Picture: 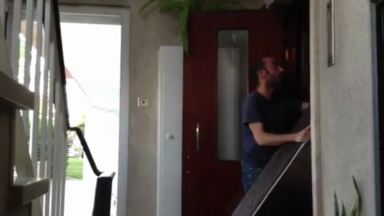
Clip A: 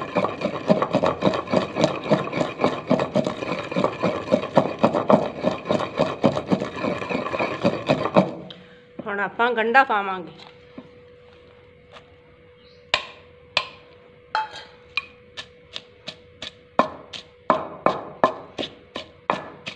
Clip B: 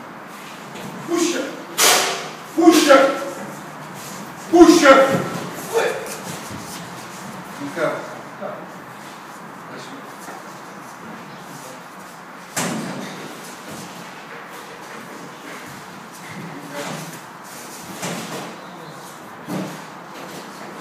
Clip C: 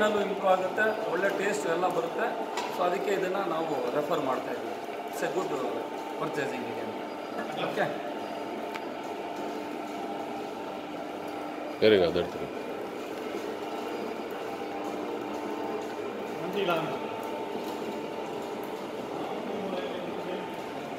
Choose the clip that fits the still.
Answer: B